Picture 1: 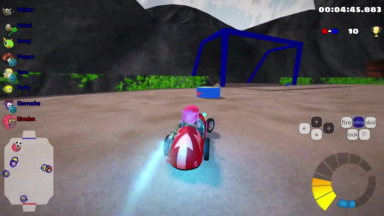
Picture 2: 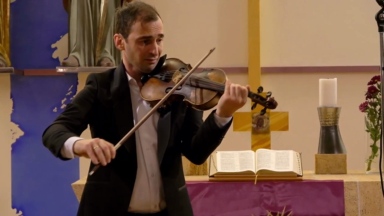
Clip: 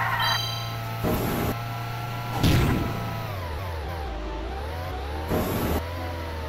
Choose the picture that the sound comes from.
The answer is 1